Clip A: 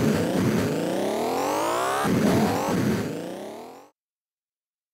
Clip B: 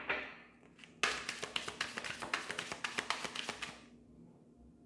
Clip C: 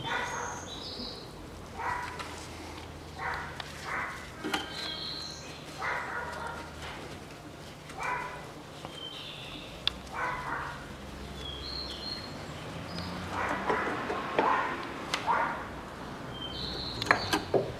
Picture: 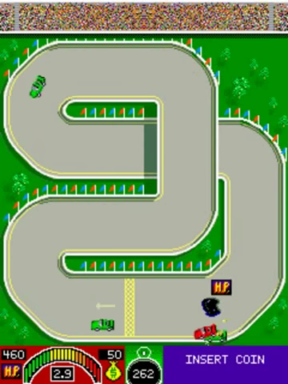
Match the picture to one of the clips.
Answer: A